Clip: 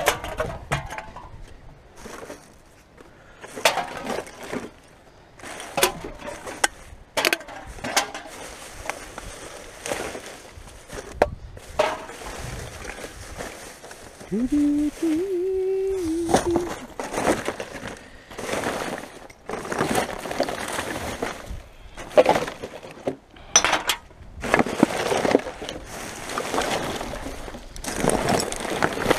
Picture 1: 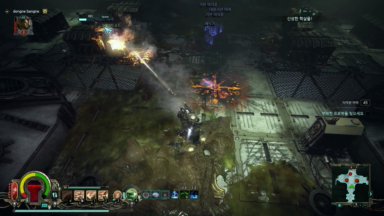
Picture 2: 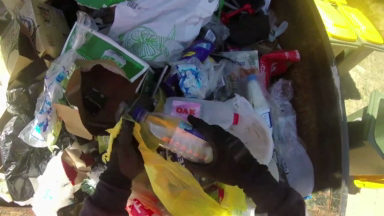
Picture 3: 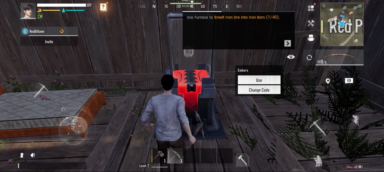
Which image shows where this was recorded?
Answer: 2